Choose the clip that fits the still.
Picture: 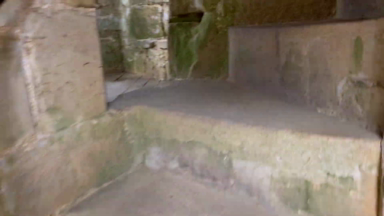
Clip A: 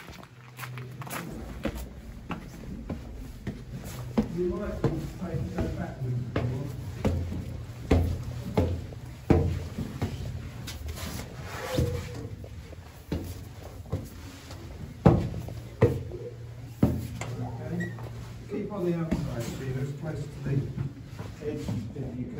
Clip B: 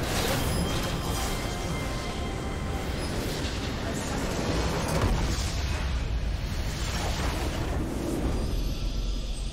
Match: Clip A